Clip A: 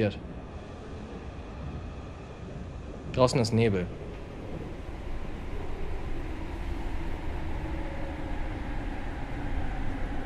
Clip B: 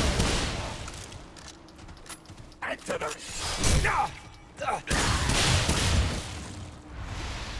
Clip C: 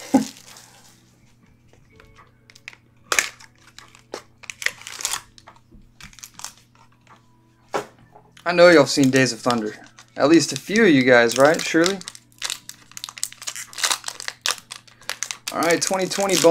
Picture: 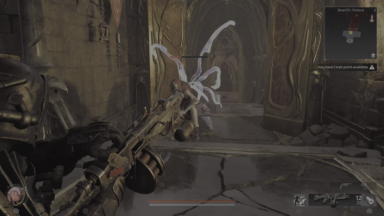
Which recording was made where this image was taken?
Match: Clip B